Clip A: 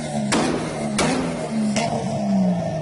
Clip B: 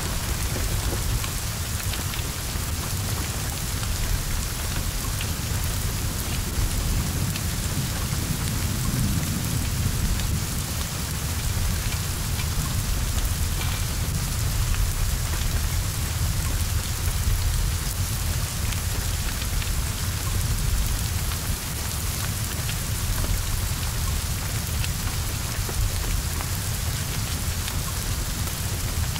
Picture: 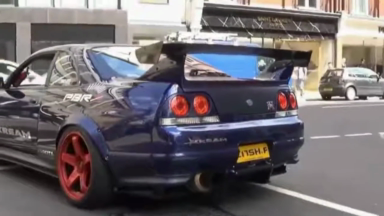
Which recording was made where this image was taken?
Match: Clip A